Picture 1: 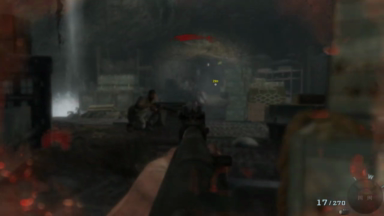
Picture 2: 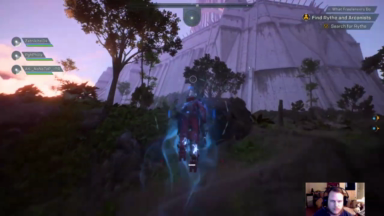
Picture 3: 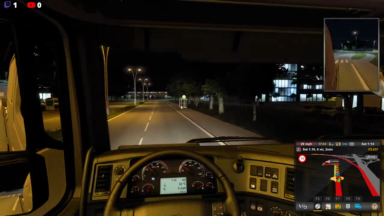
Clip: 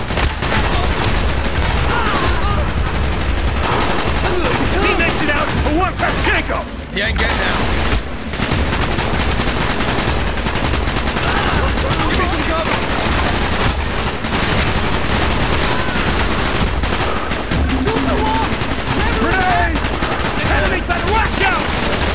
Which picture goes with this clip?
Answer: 1